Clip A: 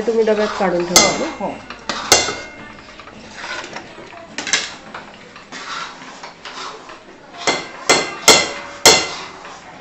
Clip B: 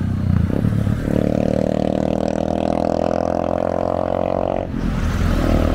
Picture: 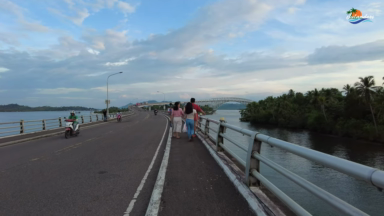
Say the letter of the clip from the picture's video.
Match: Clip B